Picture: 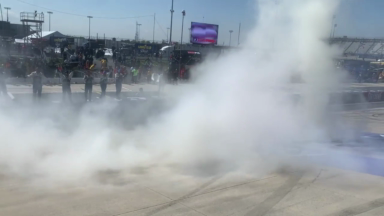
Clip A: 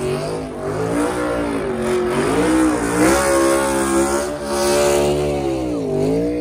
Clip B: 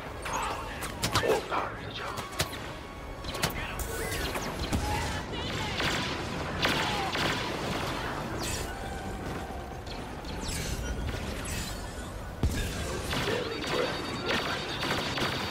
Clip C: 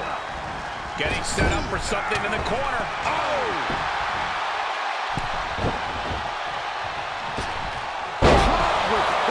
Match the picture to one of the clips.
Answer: A